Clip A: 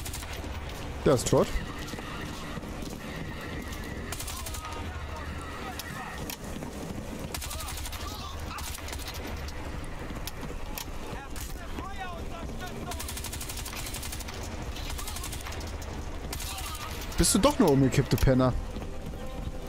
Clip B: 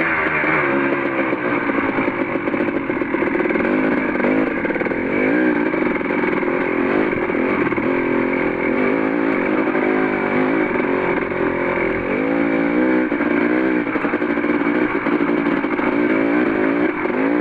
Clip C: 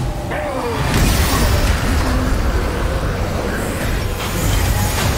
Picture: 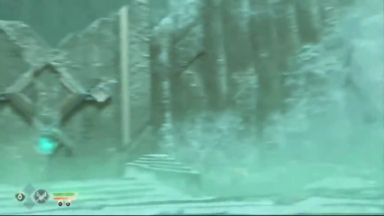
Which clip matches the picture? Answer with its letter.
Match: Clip C